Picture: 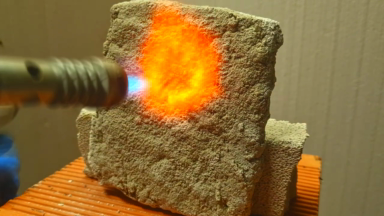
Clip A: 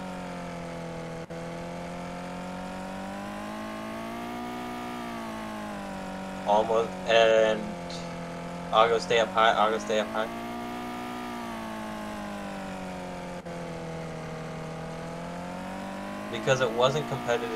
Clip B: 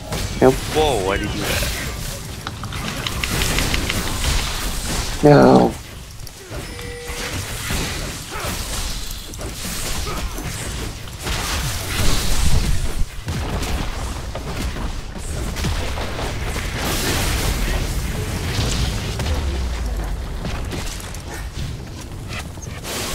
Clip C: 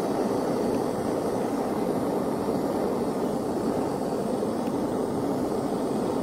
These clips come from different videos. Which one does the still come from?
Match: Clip C